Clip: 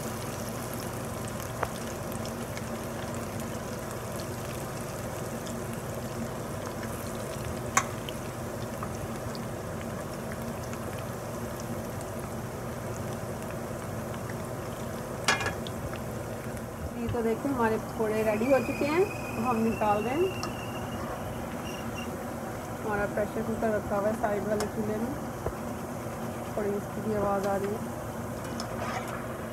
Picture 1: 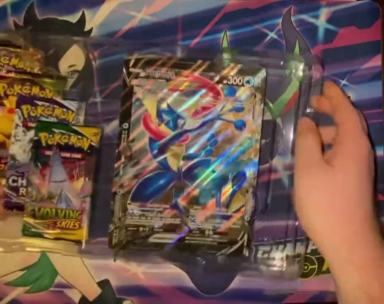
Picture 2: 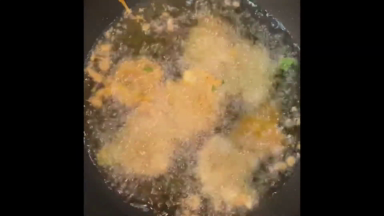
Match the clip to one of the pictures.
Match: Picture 2